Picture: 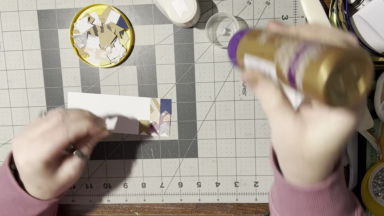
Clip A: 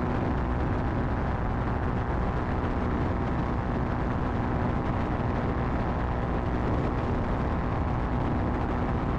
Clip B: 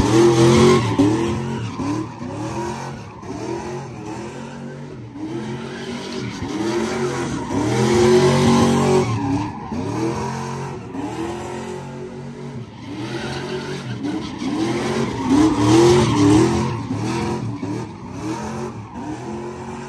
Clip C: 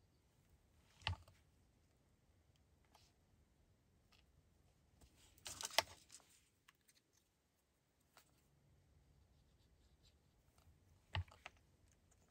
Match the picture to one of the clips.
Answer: C